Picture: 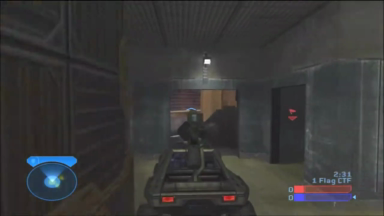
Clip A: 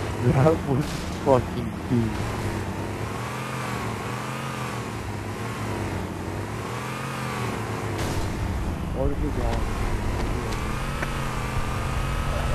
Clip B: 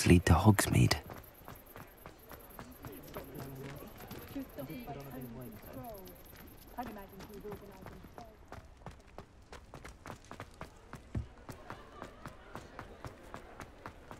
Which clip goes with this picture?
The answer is A